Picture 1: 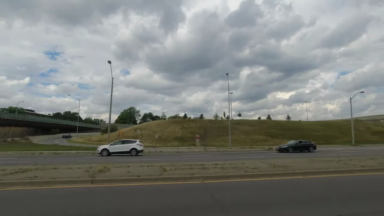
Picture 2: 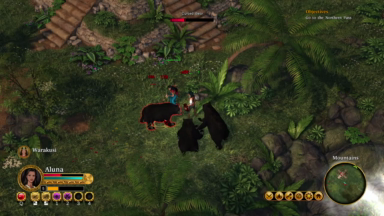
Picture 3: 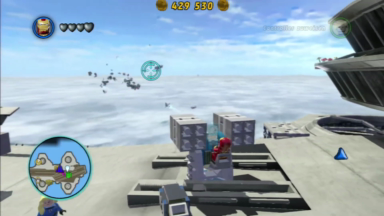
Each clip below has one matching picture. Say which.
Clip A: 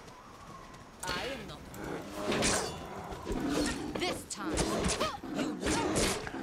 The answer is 2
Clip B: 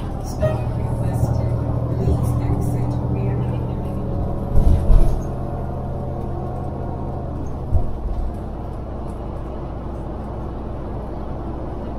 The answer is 1